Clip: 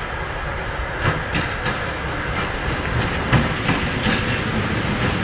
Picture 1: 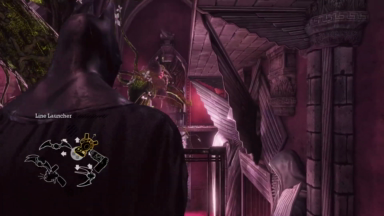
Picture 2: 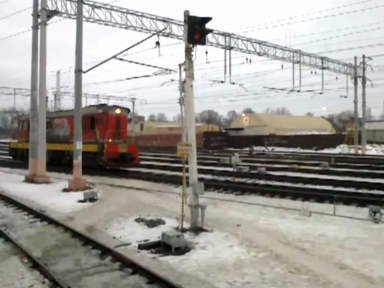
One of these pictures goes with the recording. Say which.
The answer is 2